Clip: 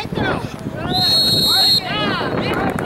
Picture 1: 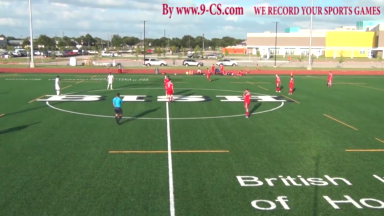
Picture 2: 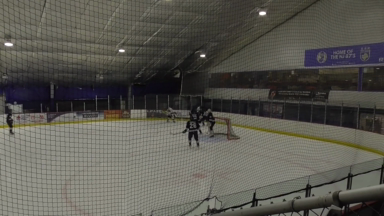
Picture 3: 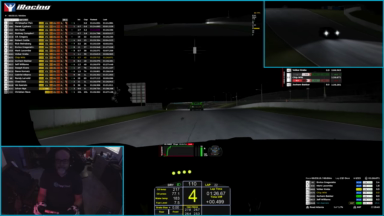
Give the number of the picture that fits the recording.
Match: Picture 1